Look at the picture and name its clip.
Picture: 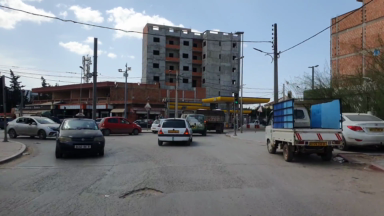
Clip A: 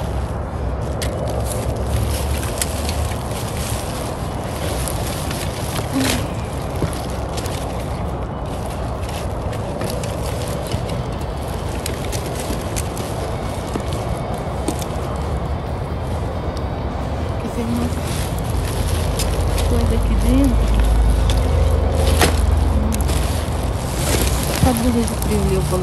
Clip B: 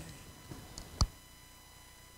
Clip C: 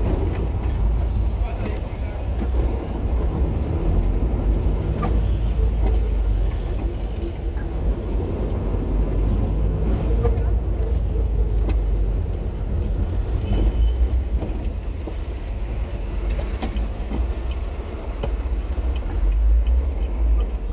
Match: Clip C